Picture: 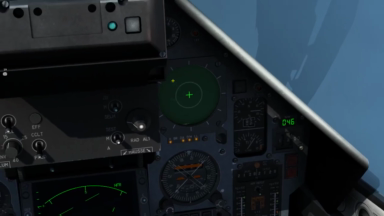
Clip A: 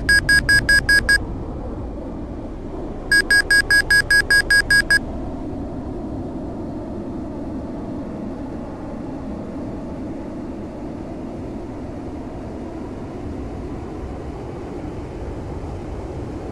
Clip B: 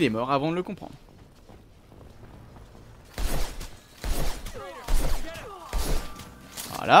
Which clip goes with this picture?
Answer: A